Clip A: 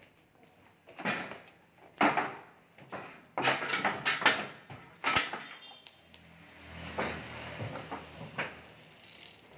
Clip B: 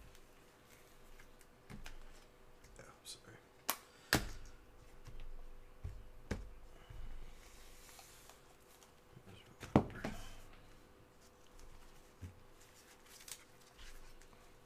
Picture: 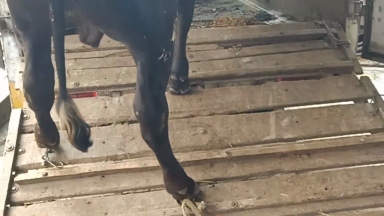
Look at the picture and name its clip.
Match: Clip A